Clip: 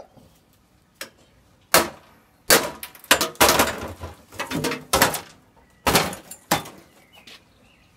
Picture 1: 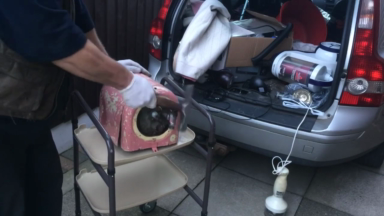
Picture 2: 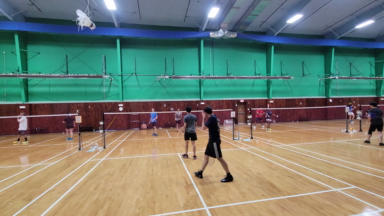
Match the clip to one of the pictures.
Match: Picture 1